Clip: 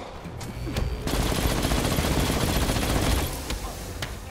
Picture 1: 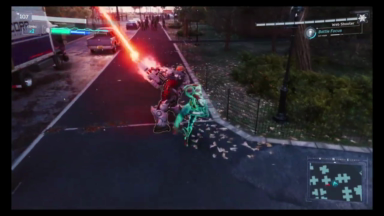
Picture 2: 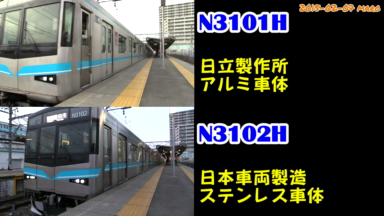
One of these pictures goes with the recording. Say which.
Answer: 1